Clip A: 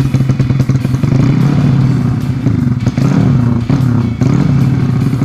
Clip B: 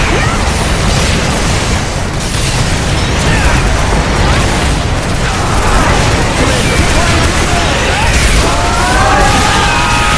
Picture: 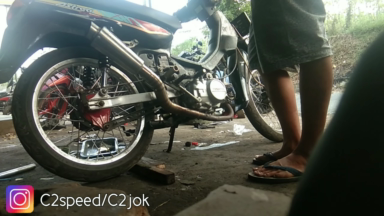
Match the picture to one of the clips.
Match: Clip A